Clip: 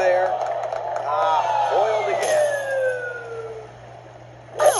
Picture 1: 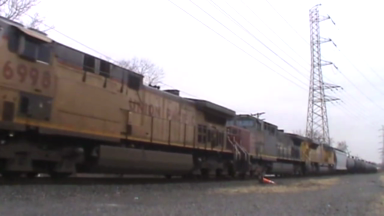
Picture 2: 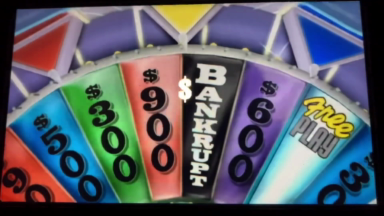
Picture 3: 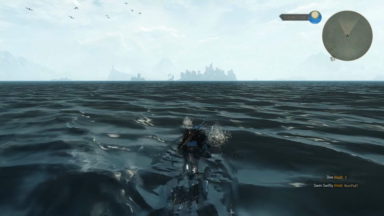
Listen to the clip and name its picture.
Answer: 2